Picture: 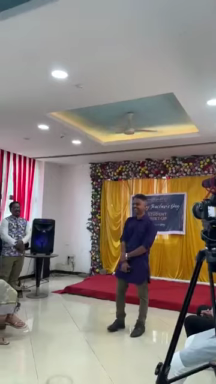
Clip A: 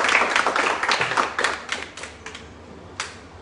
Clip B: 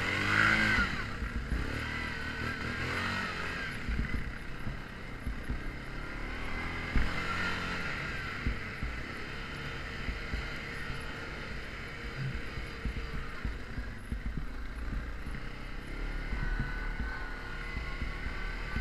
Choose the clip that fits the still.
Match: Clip A